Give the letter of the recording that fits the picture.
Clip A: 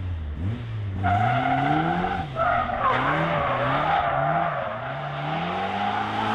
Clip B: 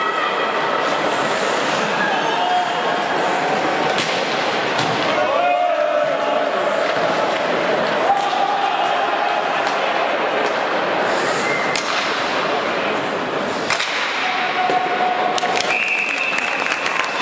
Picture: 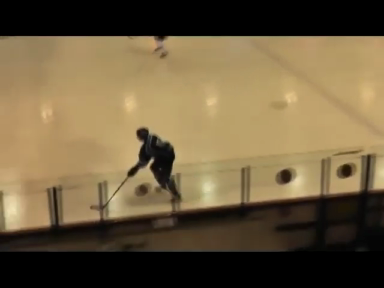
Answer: B